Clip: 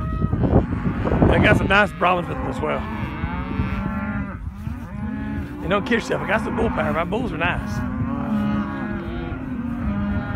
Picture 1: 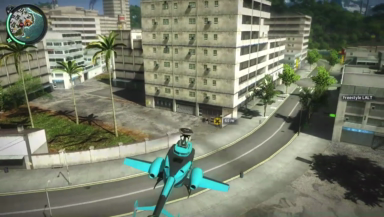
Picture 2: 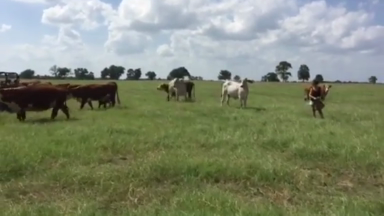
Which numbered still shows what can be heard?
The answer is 2